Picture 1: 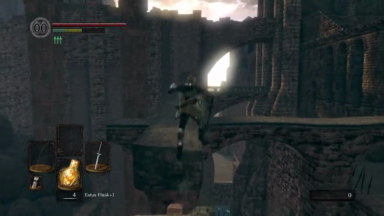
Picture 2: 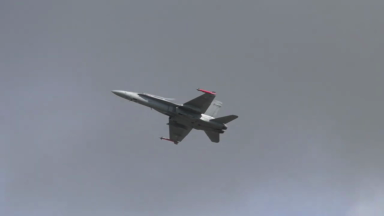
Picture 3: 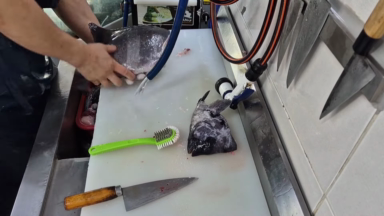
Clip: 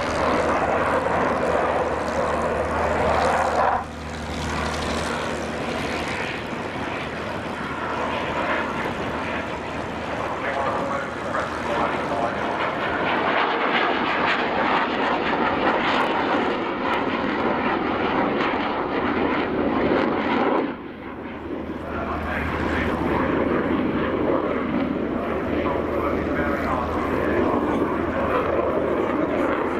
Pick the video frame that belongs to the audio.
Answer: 2